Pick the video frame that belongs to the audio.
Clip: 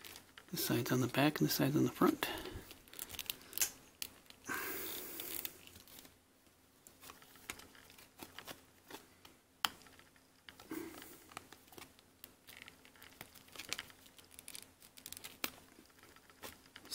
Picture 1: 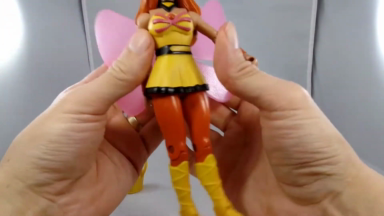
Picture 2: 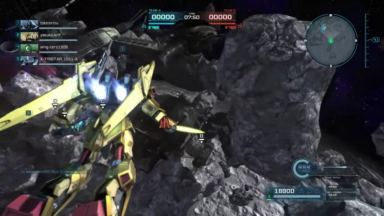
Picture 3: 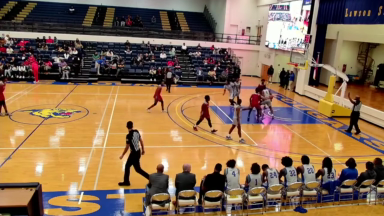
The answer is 1